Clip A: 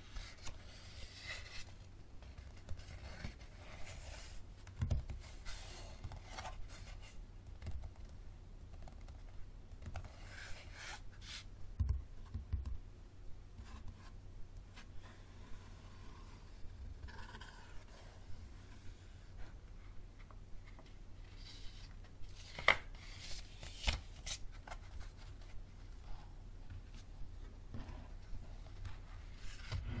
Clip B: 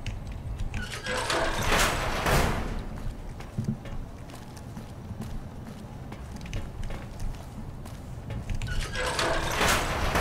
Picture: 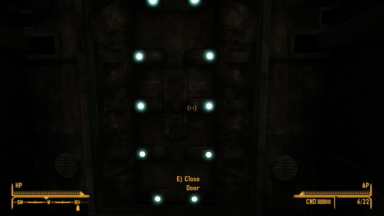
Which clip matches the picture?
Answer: B